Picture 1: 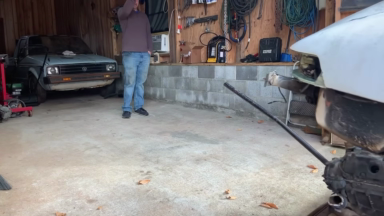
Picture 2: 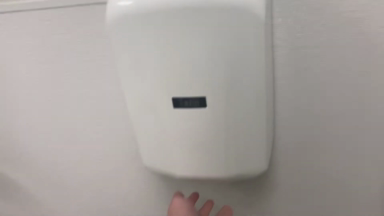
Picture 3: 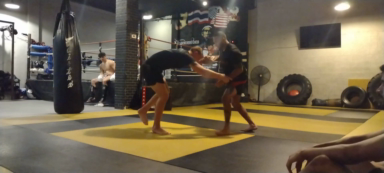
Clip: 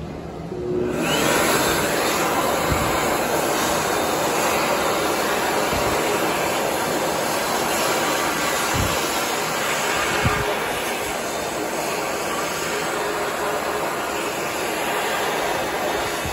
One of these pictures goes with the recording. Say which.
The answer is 2